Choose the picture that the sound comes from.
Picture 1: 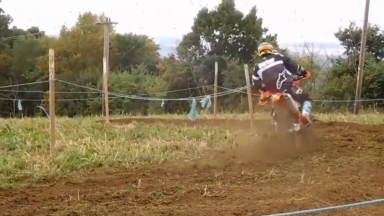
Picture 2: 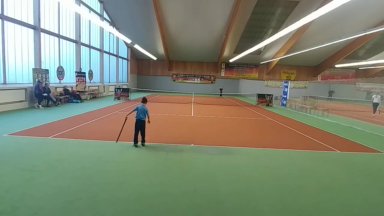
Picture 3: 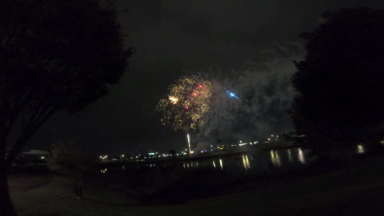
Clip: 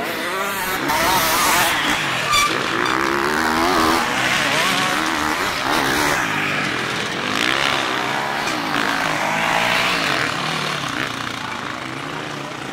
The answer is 1